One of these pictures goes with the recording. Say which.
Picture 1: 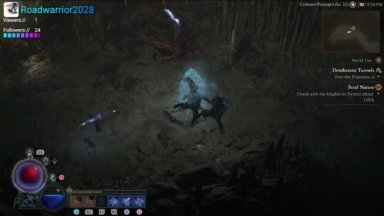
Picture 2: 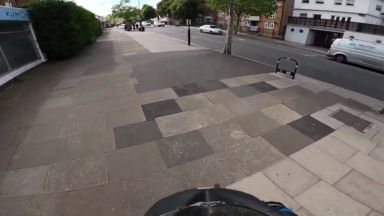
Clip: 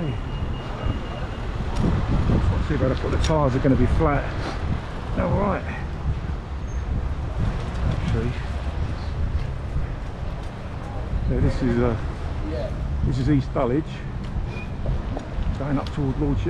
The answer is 2